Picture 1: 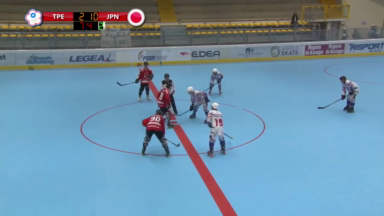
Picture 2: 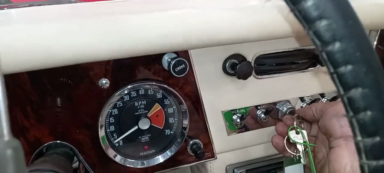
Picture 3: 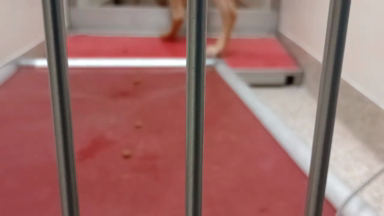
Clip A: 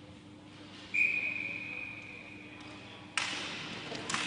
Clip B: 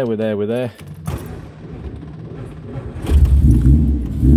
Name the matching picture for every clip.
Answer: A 1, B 2